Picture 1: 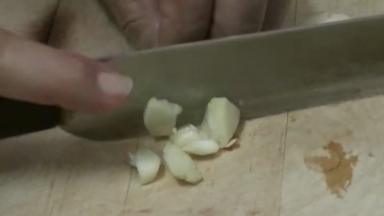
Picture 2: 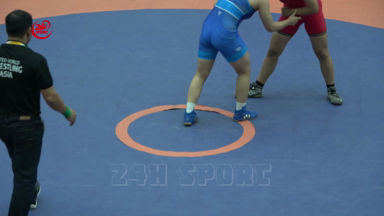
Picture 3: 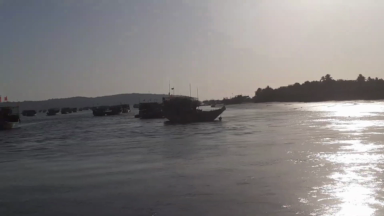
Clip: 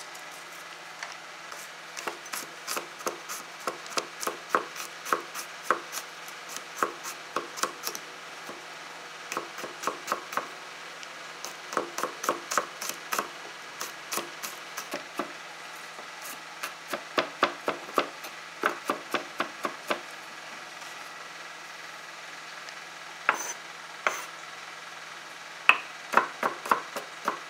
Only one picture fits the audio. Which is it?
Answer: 1